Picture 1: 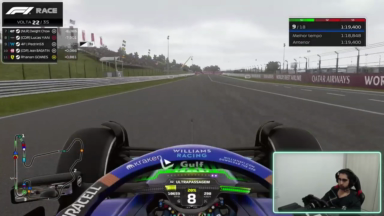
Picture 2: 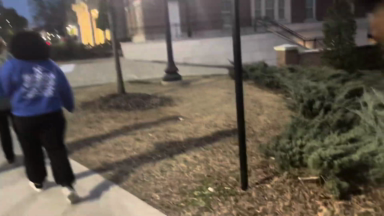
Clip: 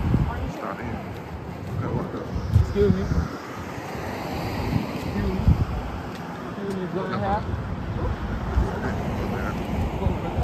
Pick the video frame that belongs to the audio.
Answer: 2